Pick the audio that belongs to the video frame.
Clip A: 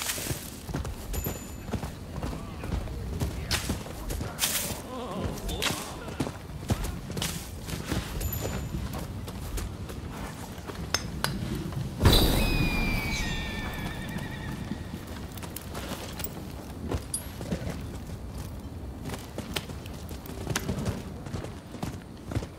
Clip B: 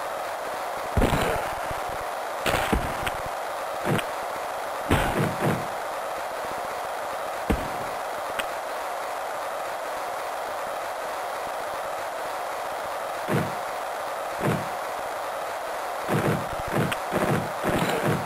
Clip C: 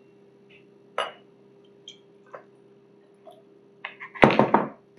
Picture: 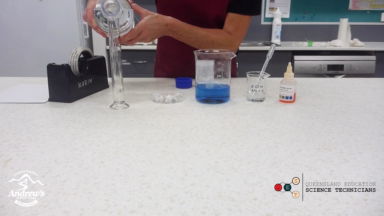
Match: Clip C